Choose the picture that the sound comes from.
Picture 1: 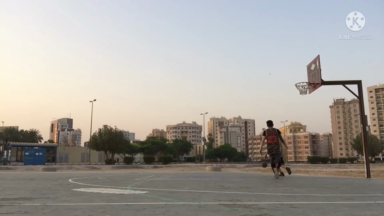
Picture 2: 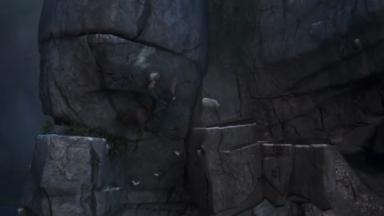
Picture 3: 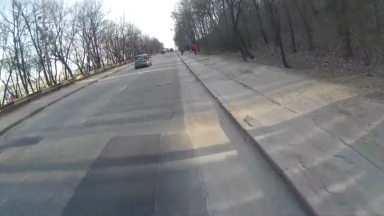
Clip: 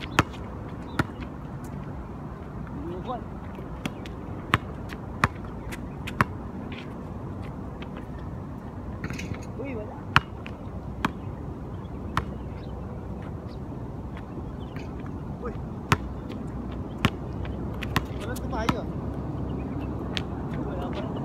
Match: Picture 1